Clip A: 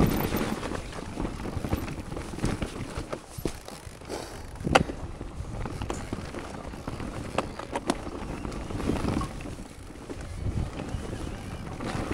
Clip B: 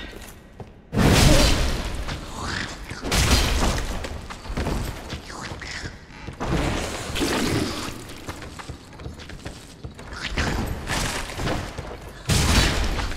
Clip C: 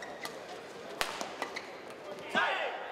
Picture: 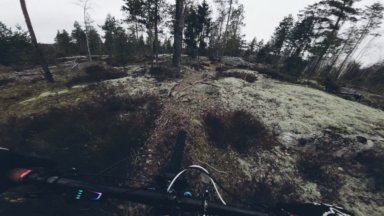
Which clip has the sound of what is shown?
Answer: A